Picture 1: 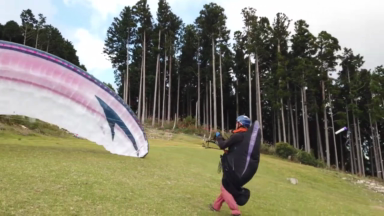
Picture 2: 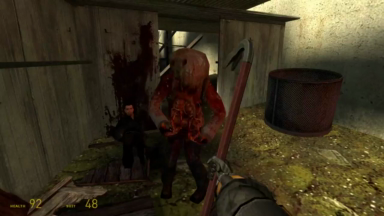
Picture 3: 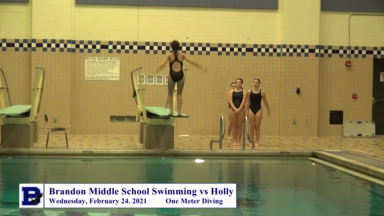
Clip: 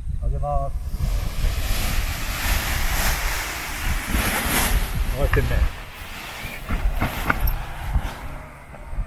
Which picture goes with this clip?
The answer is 1